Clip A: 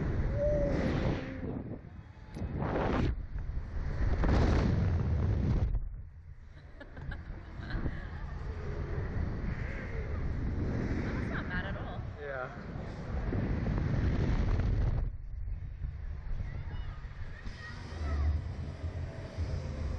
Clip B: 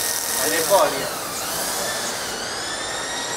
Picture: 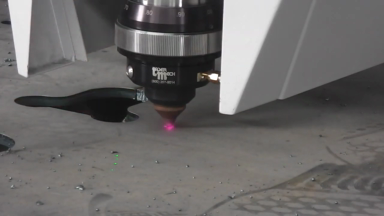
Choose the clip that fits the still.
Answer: B